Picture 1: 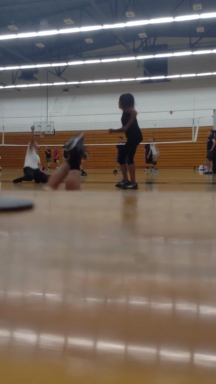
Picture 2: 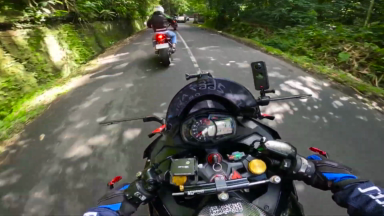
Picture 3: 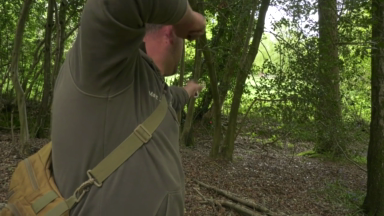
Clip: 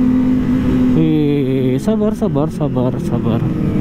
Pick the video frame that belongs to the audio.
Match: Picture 2